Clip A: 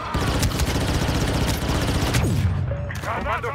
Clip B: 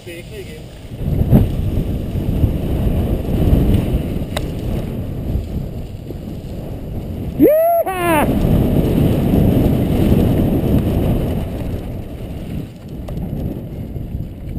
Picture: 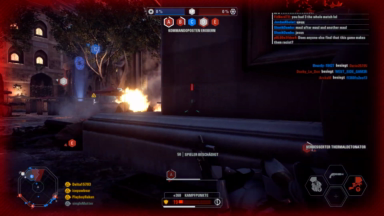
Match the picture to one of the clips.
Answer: A